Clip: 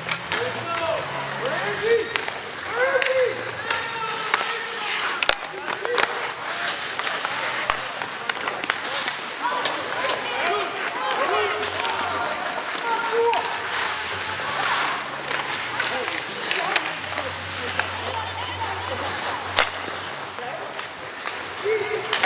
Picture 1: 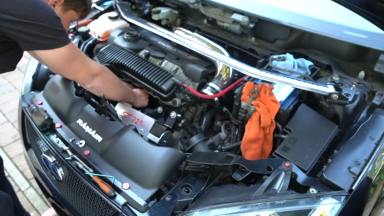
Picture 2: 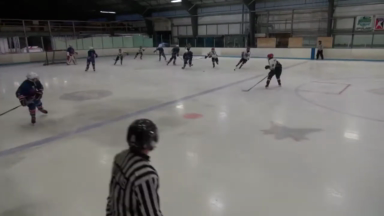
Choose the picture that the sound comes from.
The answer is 2